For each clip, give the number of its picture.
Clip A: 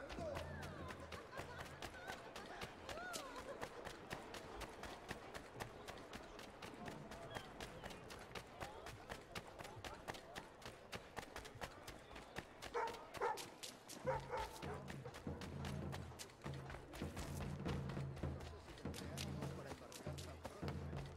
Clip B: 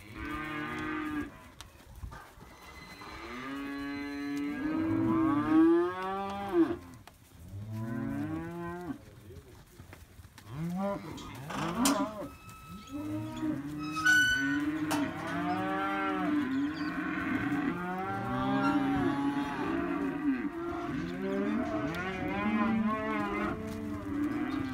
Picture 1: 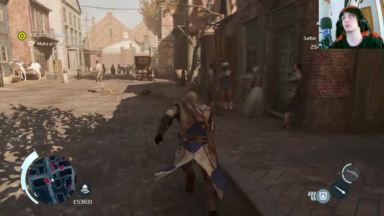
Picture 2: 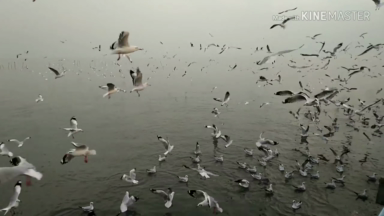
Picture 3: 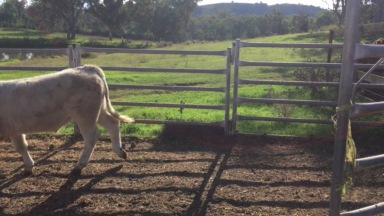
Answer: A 1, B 3